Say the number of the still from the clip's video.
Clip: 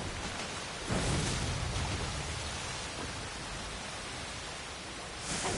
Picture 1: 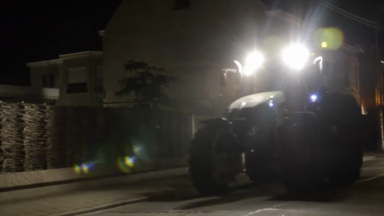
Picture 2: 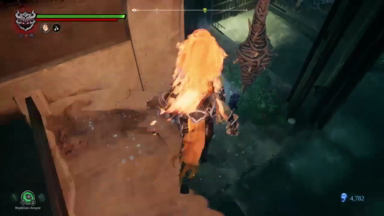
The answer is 2